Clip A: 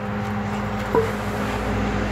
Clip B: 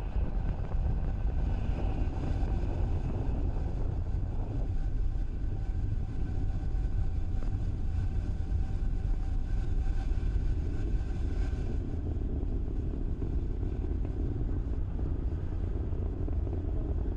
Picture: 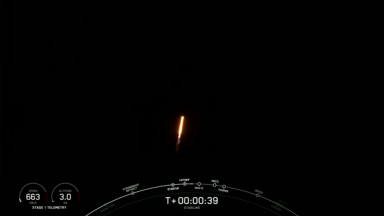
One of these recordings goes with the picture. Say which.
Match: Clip B